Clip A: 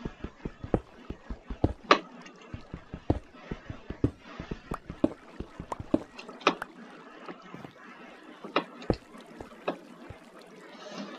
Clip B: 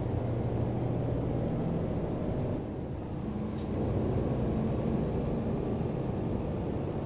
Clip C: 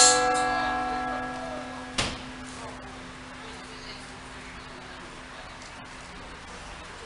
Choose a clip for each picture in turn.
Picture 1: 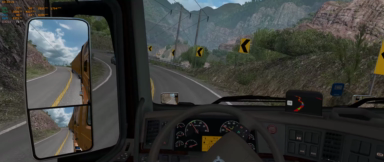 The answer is B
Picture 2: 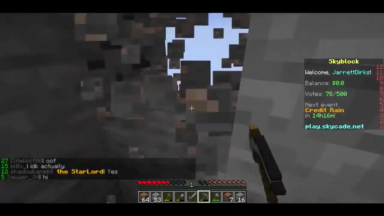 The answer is A